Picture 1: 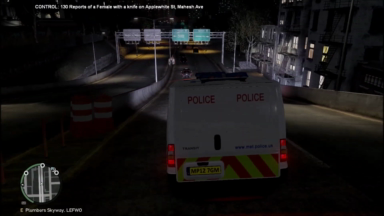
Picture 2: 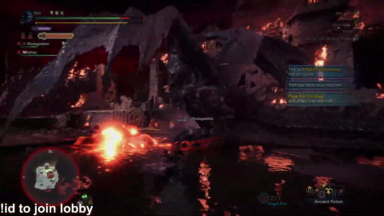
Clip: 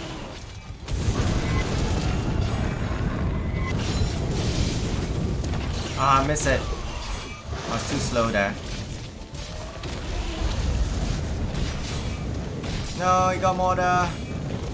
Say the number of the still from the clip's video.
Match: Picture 2